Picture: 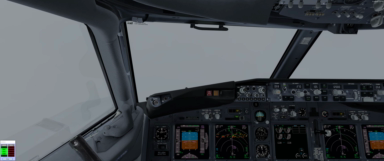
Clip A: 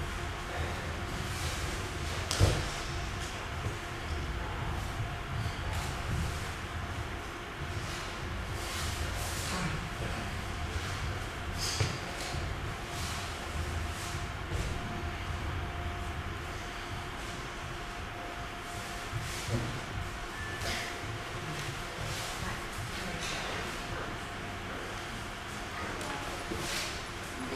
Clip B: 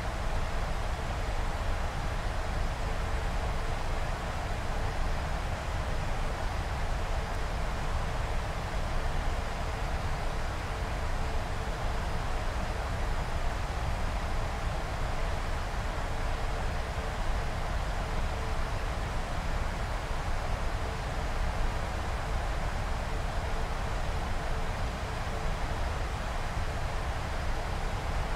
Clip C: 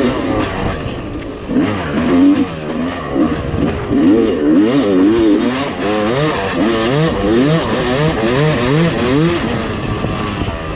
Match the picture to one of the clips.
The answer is B